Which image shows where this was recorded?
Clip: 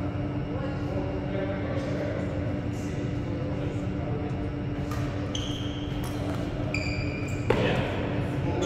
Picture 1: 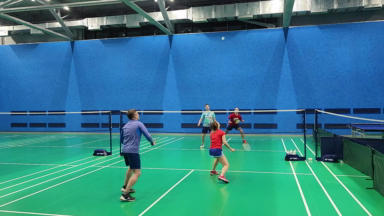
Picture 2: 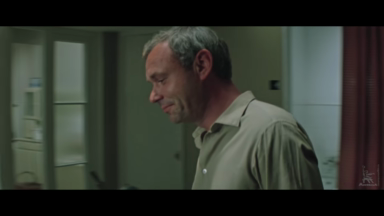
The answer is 1